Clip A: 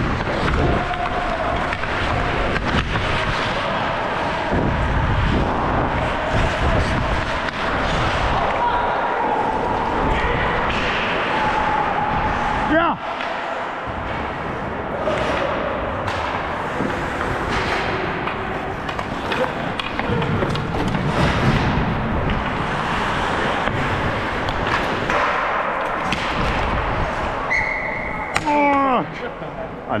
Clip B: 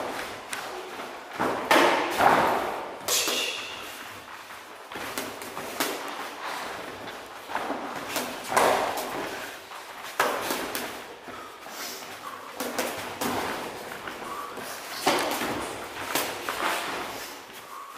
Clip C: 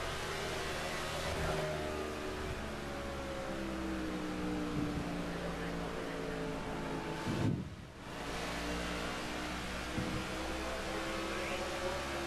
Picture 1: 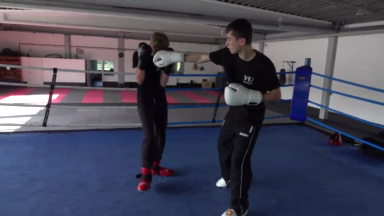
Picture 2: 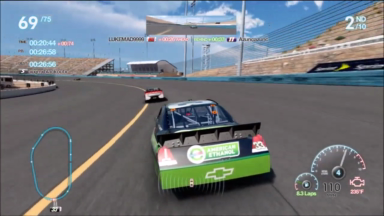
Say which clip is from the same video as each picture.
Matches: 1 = B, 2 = C